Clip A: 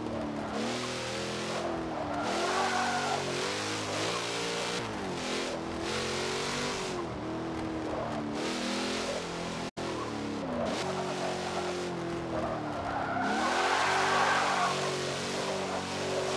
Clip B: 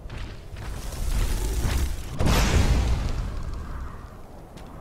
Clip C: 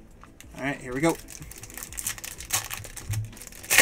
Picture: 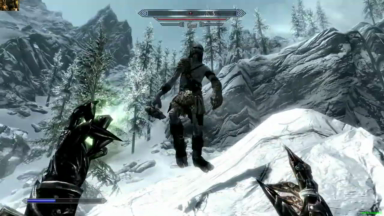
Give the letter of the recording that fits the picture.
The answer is B